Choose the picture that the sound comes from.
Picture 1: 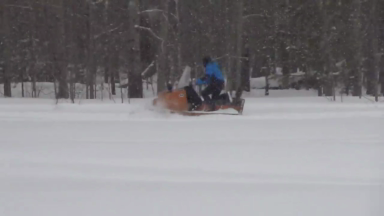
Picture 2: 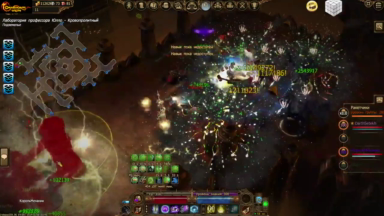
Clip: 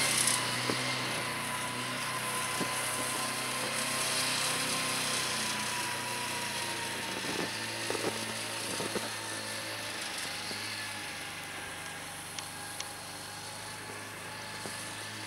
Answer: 1